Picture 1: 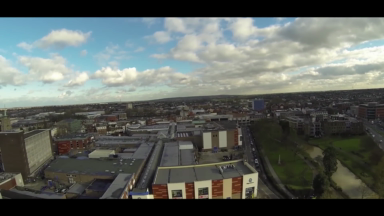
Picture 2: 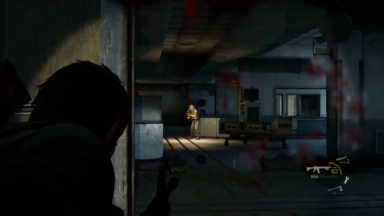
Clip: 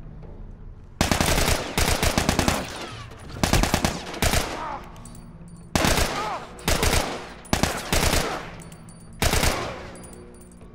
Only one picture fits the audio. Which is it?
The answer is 2